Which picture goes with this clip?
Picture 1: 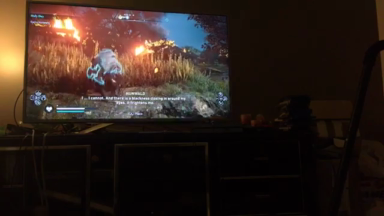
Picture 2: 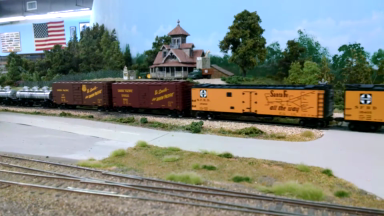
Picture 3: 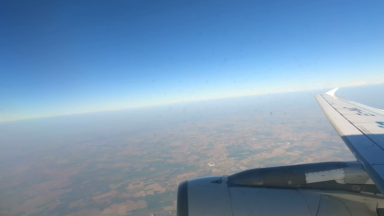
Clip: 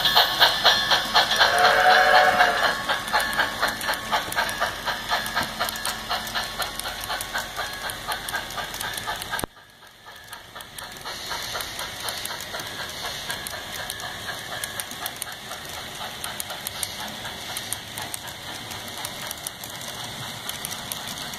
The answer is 2